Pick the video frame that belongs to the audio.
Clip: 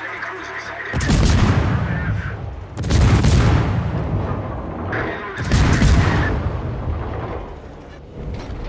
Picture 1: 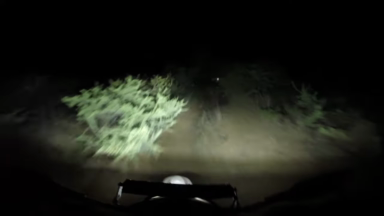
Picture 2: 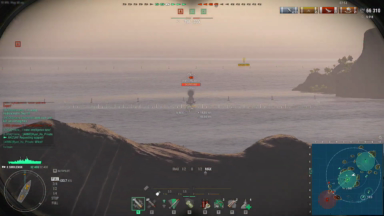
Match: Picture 2